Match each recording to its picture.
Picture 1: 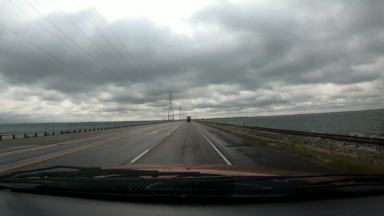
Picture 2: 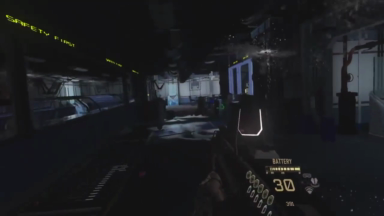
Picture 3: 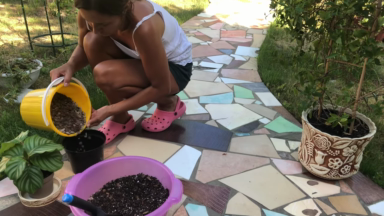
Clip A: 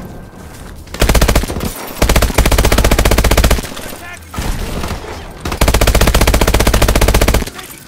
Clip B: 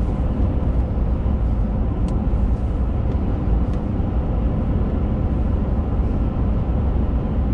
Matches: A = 2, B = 1